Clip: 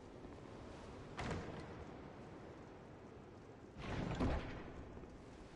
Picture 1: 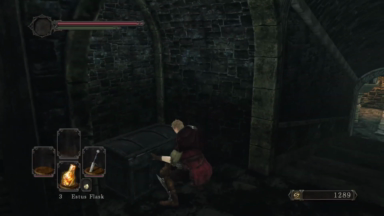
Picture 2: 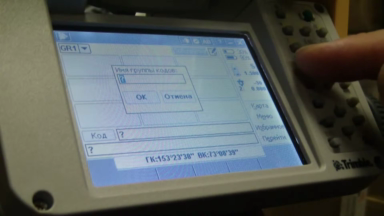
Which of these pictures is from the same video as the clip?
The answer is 1